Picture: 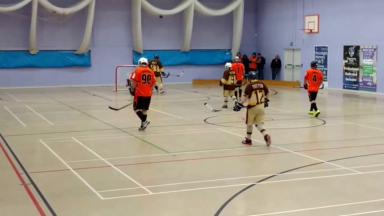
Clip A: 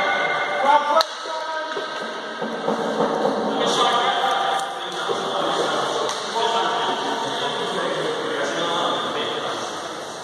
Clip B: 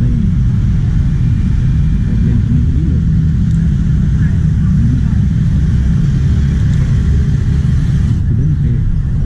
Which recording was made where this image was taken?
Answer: A